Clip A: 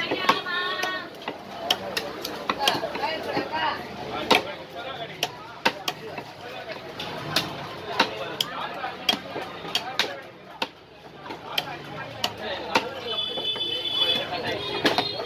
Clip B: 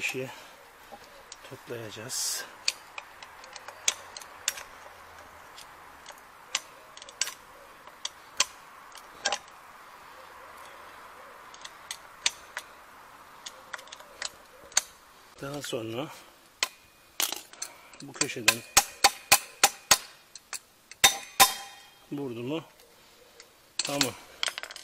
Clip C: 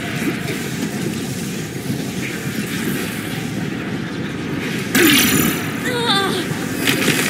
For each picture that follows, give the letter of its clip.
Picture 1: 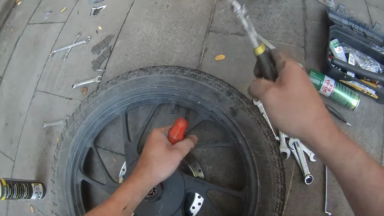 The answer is B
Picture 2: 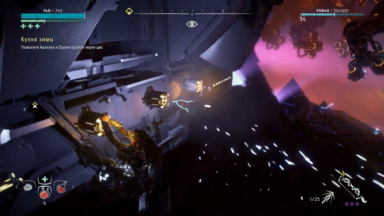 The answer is C